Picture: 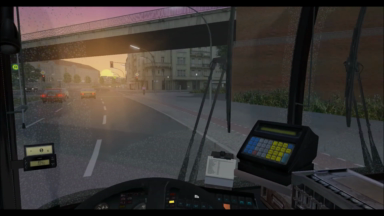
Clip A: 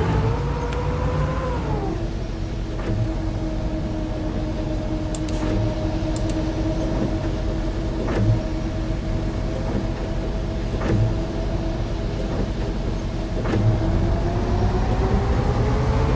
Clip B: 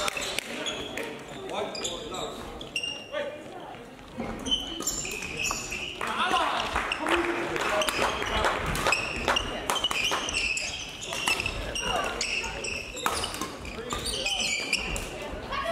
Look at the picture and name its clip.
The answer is A